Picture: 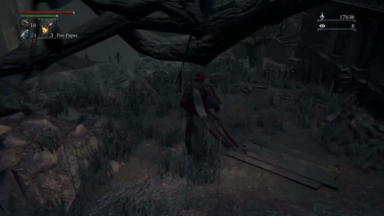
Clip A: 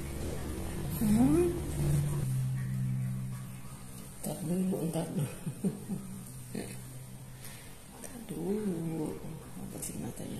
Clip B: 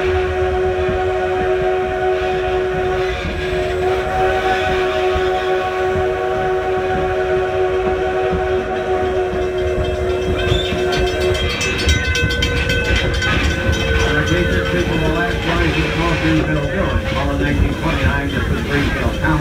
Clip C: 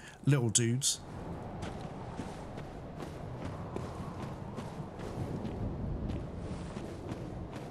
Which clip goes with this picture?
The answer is C